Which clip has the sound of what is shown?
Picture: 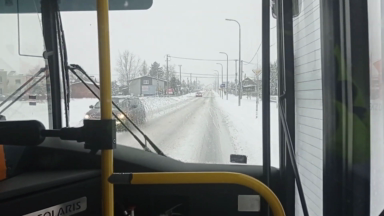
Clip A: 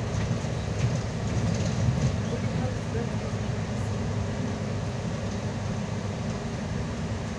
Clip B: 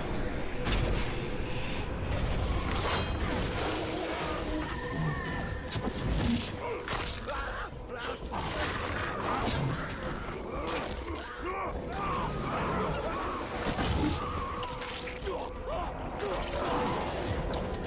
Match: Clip A